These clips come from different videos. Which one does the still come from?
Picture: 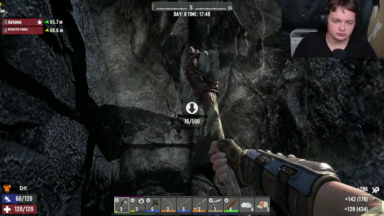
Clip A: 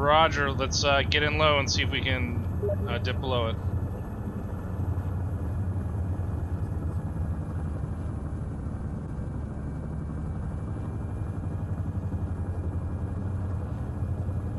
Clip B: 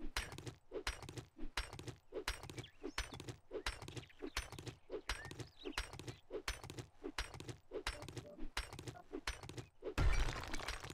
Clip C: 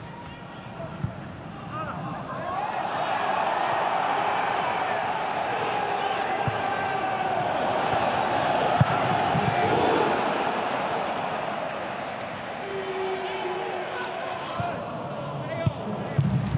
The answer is B